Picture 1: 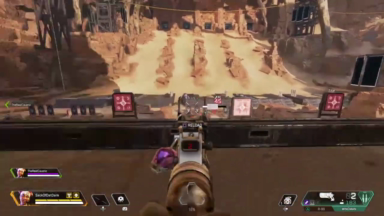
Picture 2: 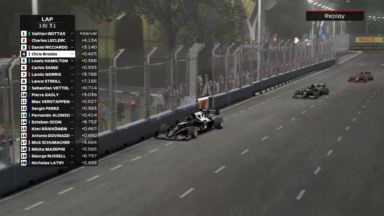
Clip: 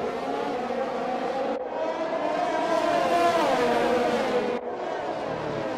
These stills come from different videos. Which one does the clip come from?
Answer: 2